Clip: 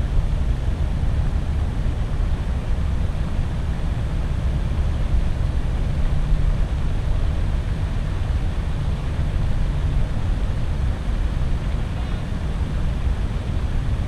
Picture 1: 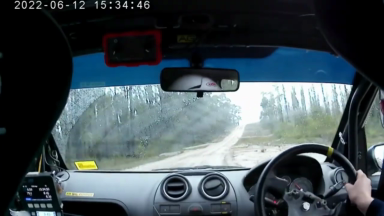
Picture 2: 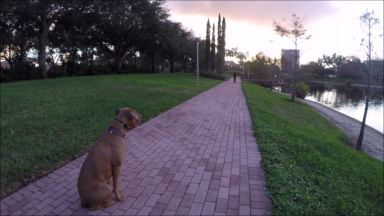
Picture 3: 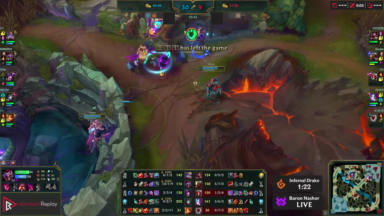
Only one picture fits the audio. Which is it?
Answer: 2